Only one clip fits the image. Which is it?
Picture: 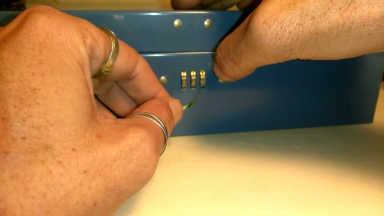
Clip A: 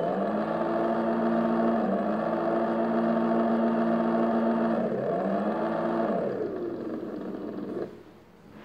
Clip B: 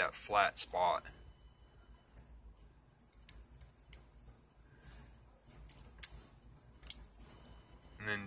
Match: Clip B